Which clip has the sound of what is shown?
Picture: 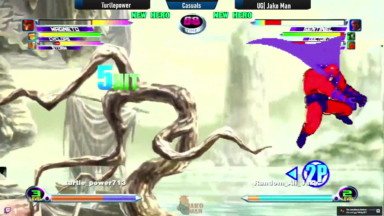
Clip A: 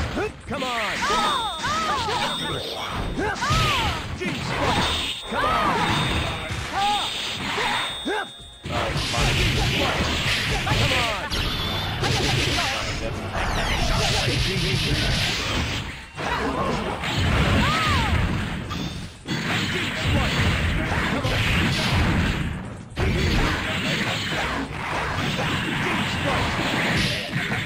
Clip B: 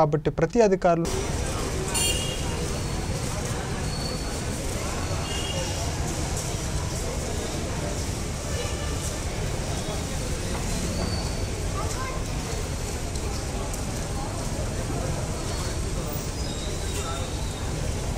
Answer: A